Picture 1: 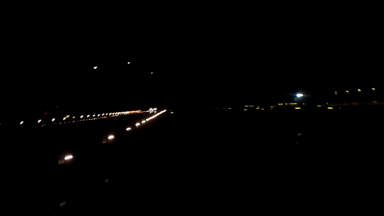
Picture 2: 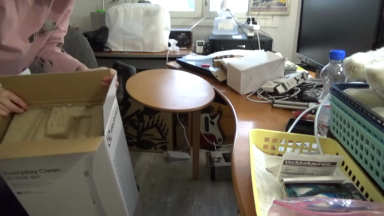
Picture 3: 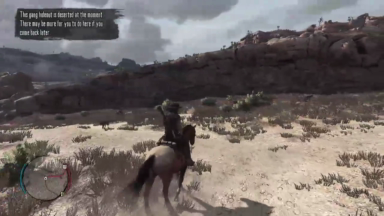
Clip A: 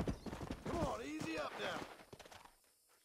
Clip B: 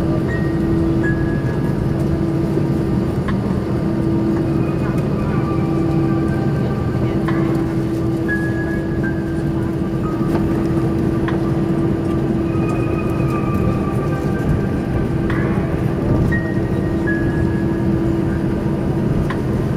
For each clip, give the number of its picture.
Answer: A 3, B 1